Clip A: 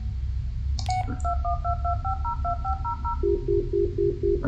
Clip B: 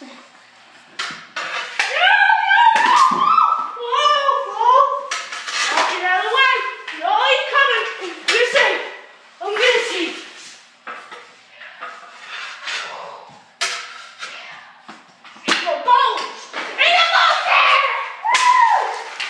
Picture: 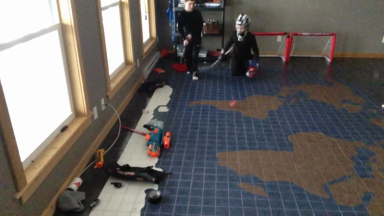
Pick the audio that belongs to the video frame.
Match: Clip B